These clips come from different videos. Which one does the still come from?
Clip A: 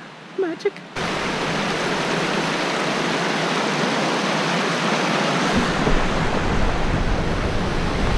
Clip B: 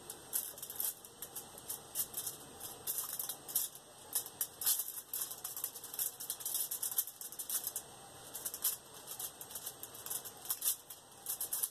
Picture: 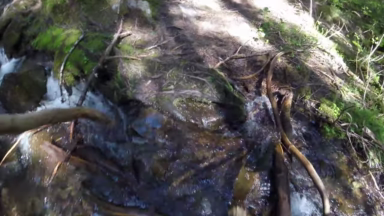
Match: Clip A